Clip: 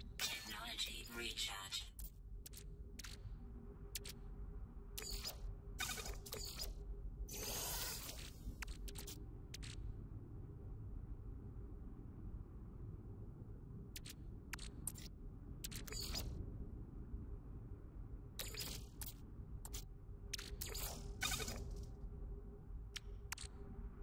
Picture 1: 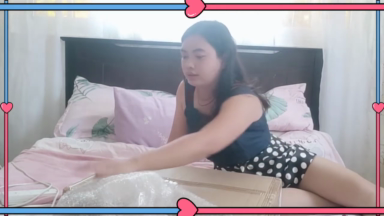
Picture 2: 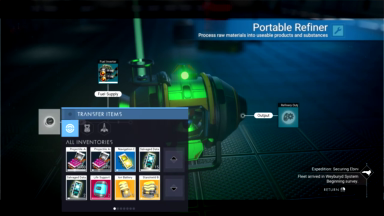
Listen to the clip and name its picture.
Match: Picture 2